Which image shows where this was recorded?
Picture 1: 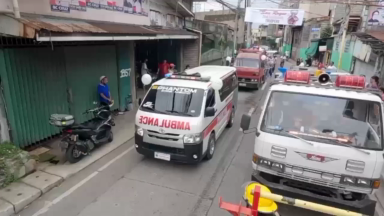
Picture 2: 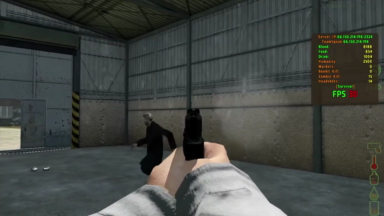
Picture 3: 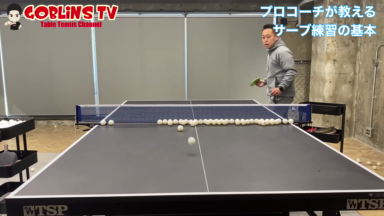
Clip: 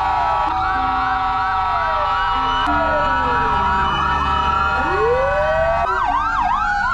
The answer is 1